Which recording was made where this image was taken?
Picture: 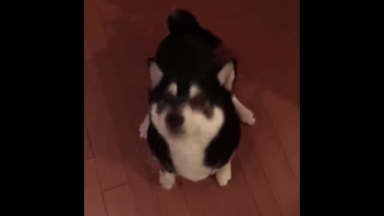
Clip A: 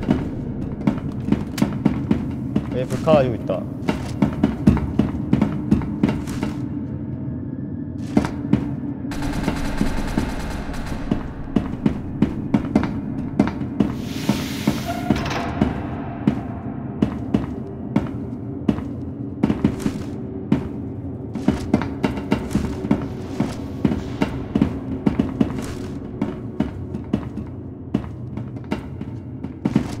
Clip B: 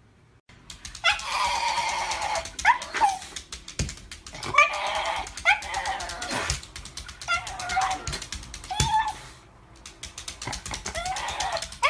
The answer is B